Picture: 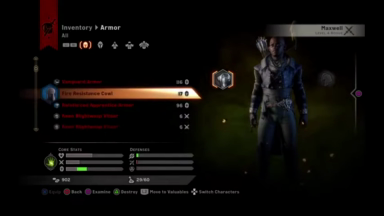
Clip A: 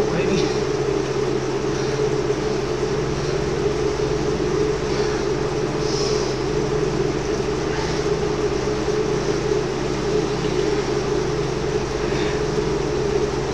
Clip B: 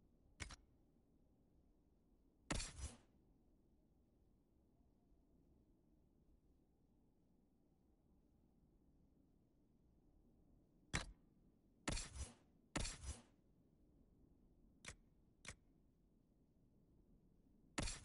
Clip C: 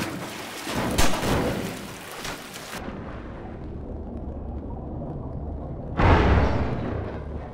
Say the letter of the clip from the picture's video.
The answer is B